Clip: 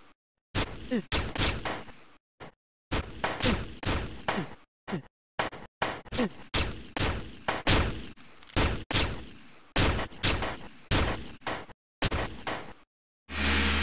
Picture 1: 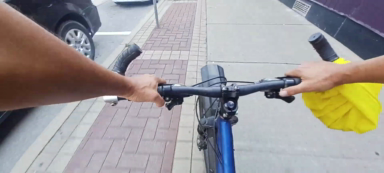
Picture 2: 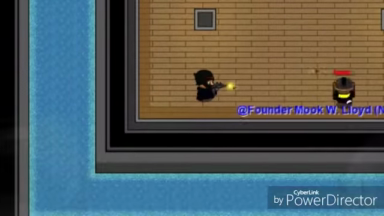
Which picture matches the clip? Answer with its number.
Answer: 2